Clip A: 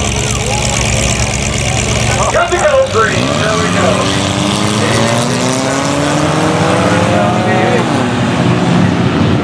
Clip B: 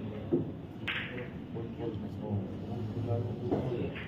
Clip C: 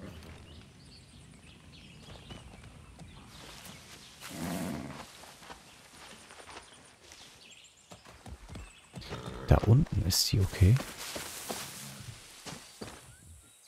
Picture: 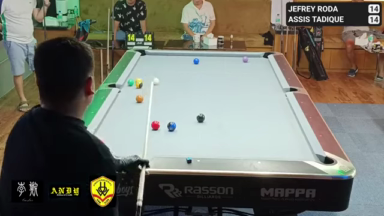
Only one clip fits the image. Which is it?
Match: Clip B